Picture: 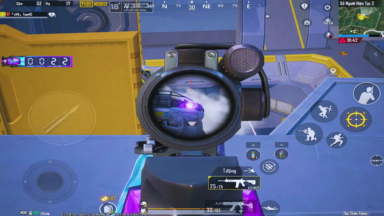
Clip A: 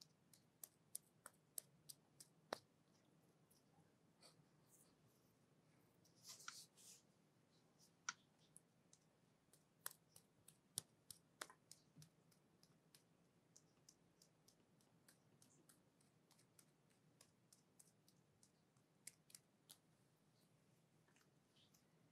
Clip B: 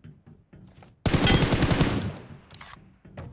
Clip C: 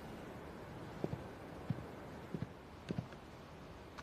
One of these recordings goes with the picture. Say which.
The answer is B